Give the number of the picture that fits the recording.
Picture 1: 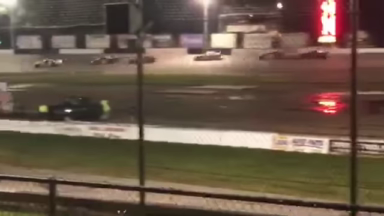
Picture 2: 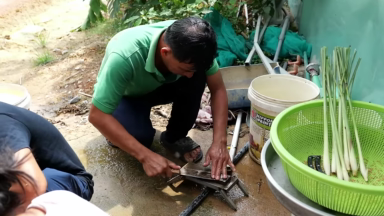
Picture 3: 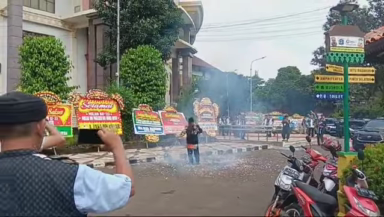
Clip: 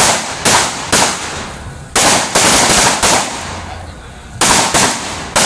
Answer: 3